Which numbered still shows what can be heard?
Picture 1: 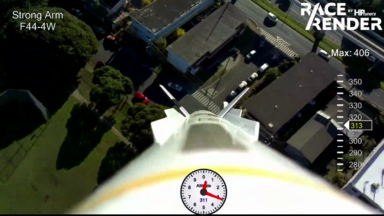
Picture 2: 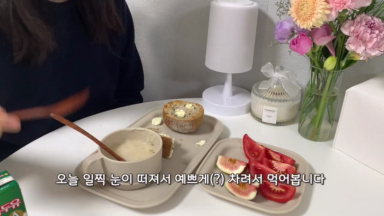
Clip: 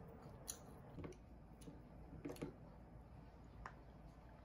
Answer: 2